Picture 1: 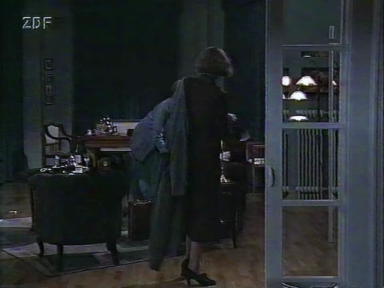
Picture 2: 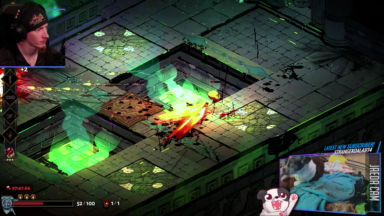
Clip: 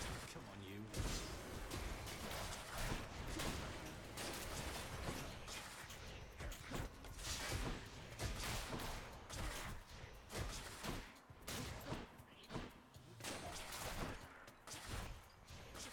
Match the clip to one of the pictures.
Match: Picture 2